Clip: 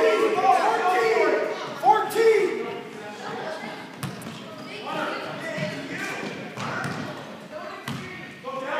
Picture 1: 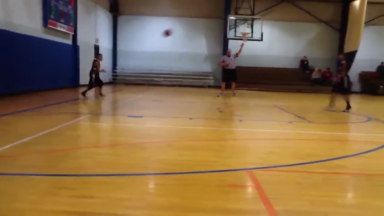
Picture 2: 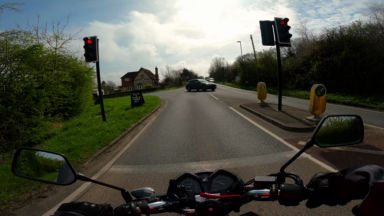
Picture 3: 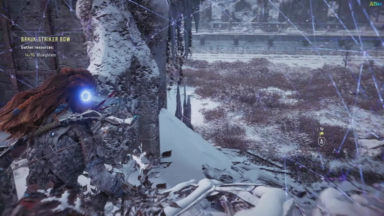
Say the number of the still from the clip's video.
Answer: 1